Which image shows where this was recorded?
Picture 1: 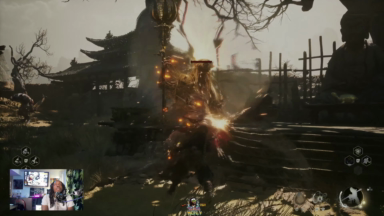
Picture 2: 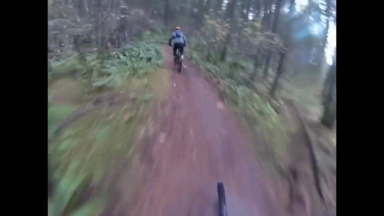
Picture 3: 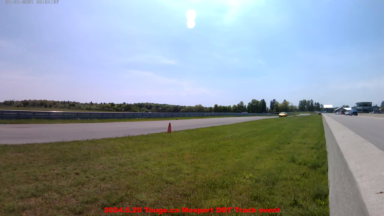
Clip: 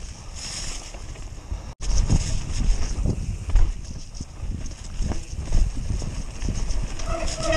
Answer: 2